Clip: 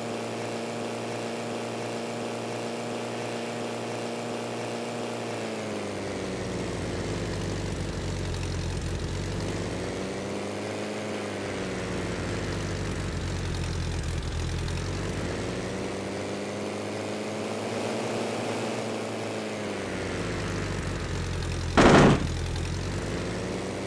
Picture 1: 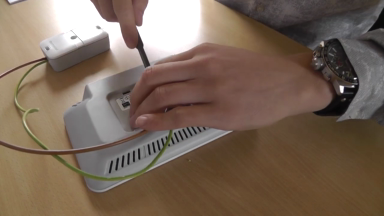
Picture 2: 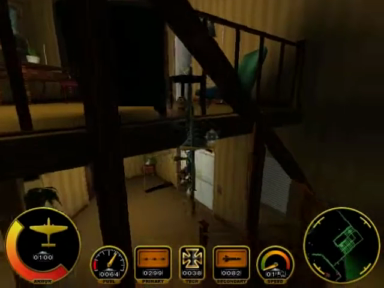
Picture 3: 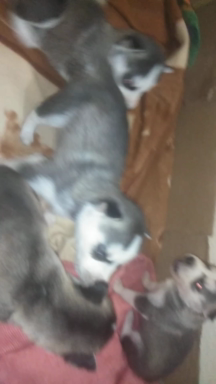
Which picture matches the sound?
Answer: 2